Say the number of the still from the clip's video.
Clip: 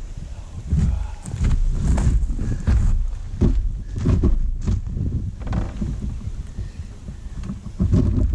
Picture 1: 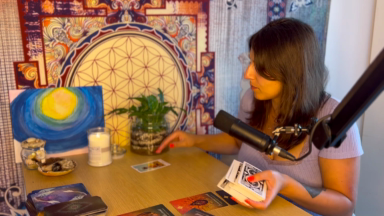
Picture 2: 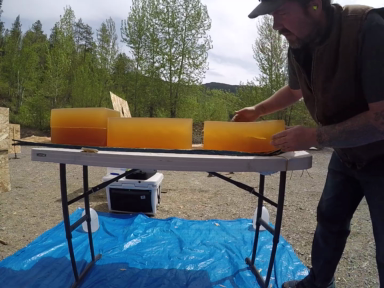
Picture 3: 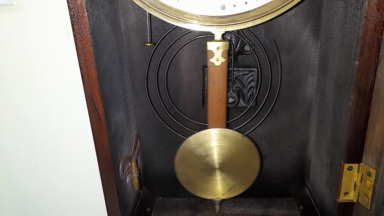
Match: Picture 2